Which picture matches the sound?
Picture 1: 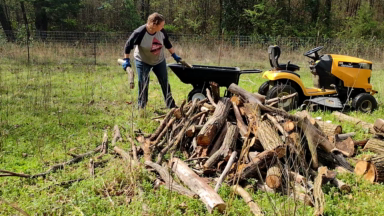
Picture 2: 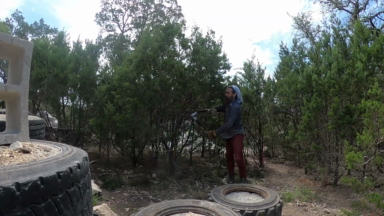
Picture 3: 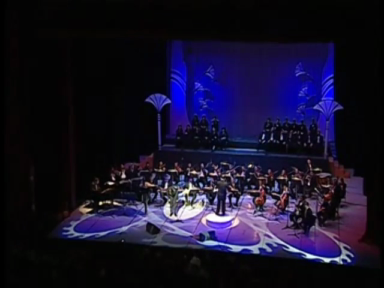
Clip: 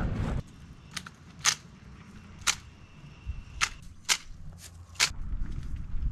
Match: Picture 2